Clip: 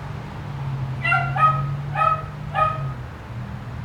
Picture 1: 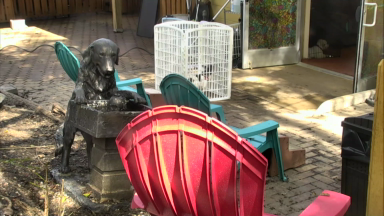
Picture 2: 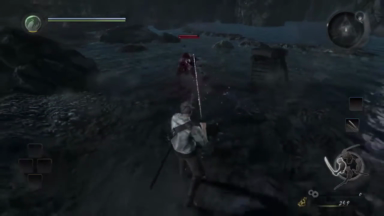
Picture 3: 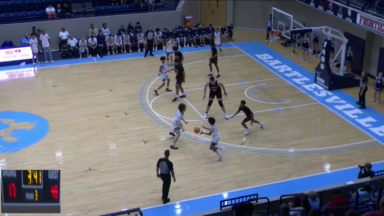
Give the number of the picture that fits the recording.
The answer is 1